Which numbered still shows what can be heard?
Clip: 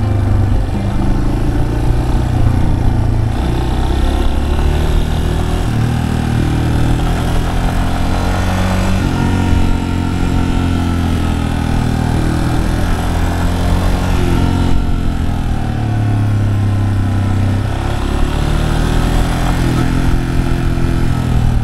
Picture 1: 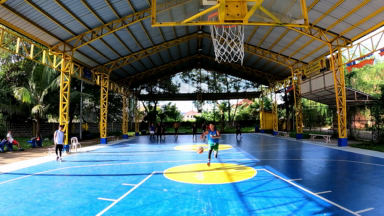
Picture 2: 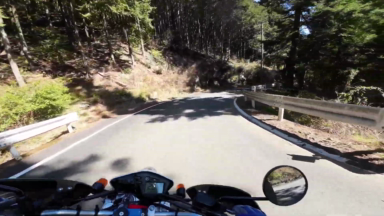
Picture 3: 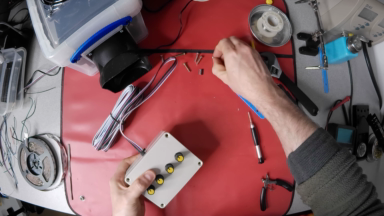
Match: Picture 2